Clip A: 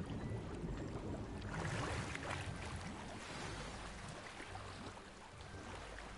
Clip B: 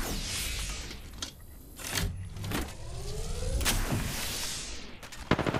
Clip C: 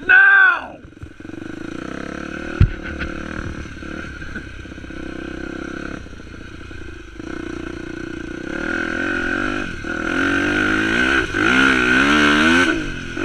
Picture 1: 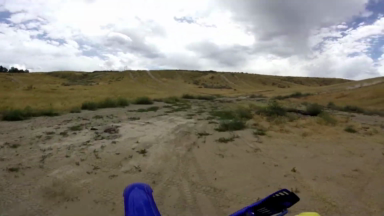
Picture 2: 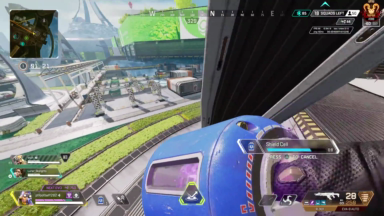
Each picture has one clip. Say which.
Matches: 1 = C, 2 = B